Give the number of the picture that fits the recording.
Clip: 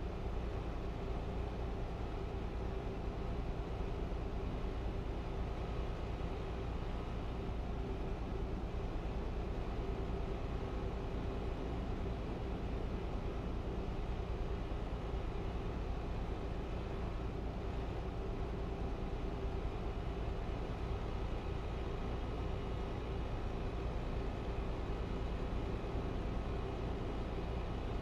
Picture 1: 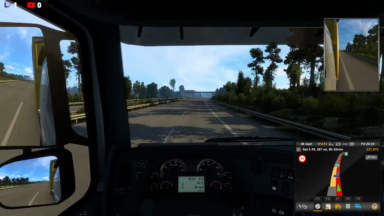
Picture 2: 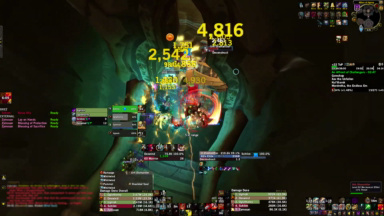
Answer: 1